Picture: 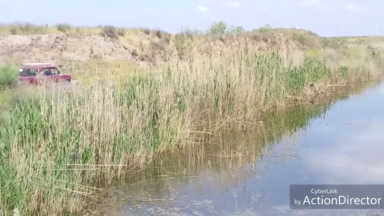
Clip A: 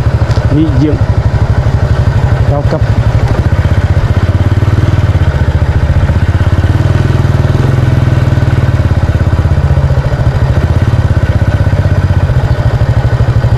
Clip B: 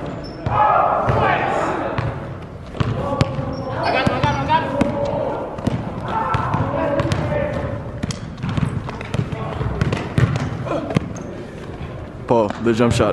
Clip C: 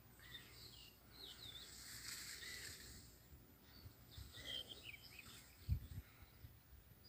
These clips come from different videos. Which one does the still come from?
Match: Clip C